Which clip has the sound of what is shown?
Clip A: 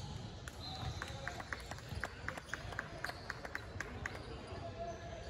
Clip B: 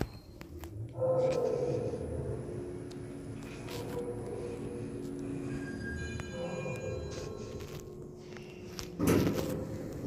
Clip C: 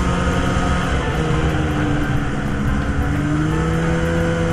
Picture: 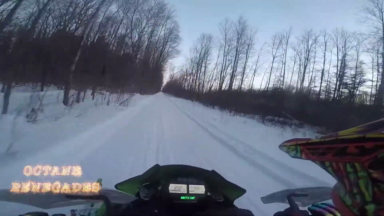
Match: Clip C